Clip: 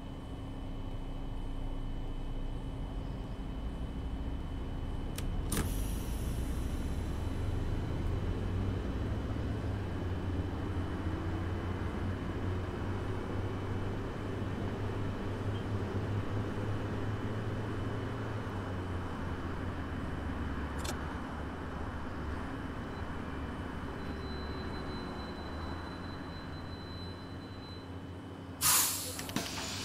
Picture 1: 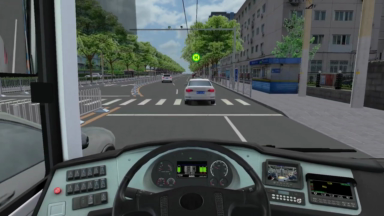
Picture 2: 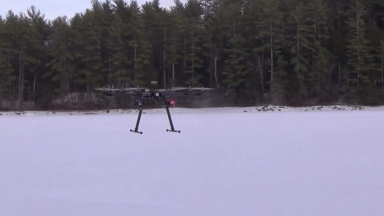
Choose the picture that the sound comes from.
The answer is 1